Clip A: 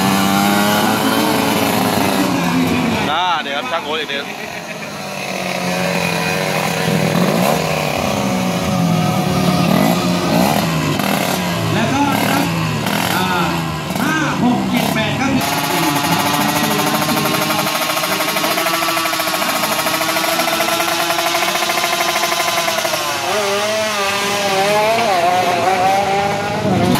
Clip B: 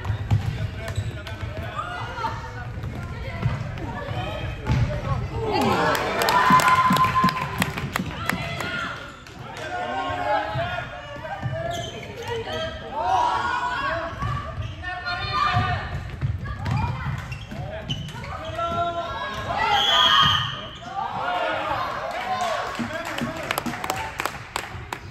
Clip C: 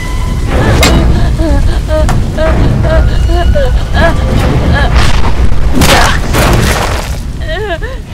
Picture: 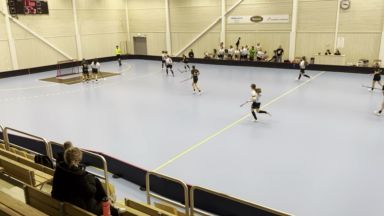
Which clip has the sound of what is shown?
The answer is B